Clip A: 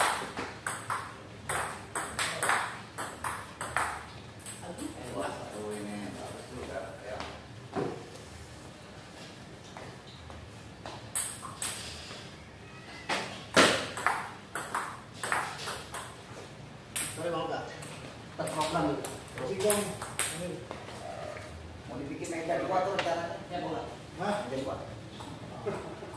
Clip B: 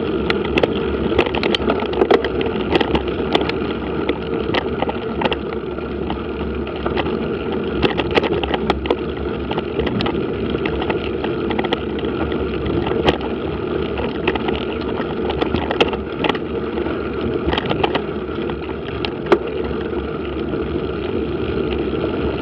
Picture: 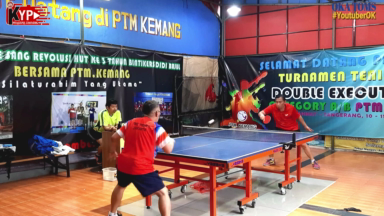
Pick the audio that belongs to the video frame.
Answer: A